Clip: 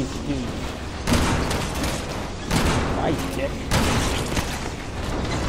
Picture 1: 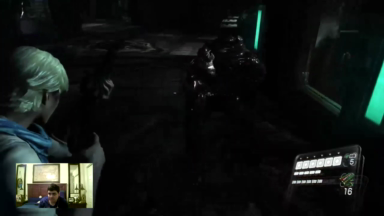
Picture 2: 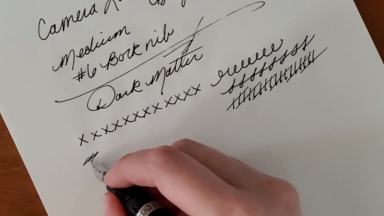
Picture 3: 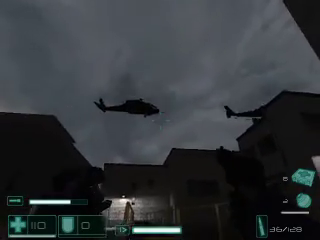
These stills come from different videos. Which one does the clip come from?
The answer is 1